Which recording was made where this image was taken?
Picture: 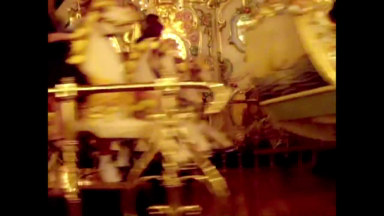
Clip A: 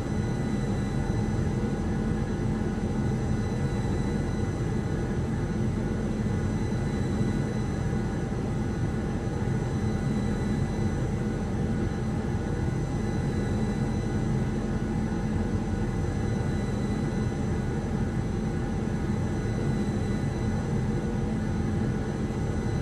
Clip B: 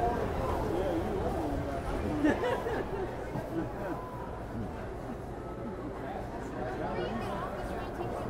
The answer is B